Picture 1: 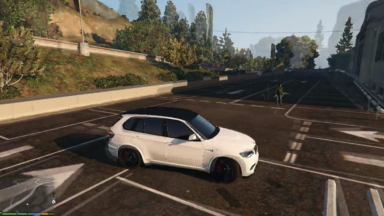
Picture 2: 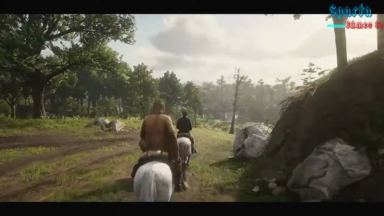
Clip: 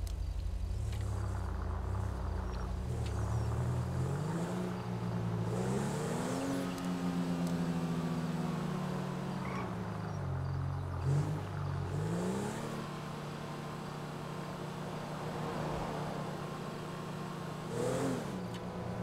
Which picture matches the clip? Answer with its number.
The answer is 1